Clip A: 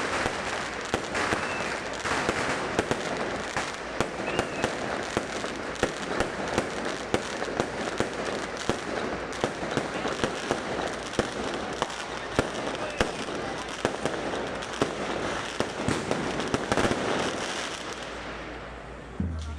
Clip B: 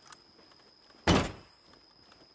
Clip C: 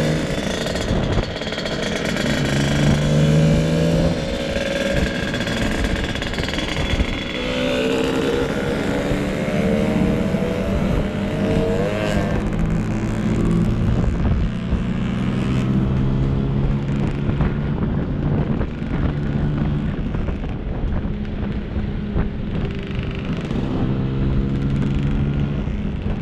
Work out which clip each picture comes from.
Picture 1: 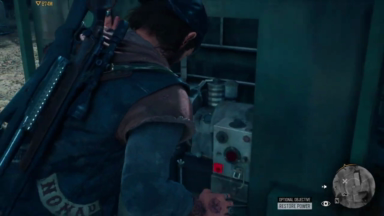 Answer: B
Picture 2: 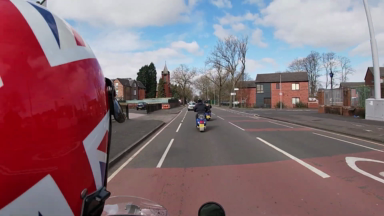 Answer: C